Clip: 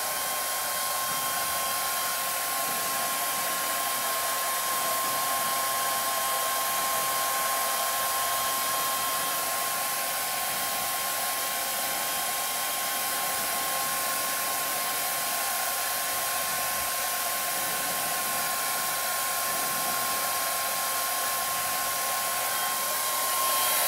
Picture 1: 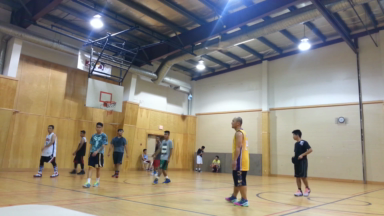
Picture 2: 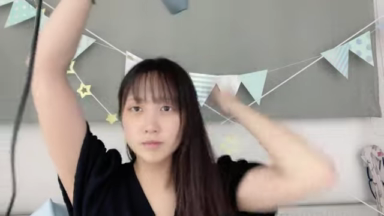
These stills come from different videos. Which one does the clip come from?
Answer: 2